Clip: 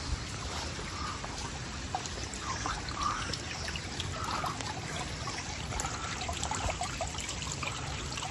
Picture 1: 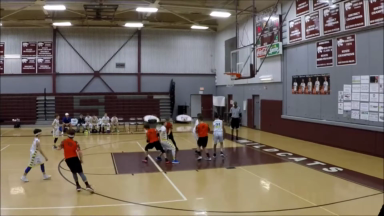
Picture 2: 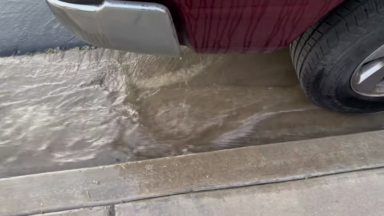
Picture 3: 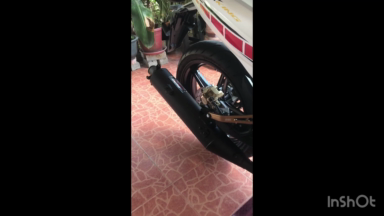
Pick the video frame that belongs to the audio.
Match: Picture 2